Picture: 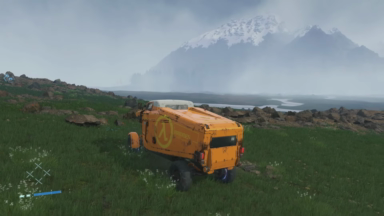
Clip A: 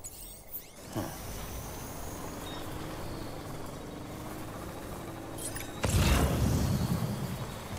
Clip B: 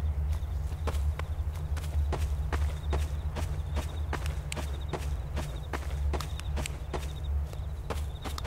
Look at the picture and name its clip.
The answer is A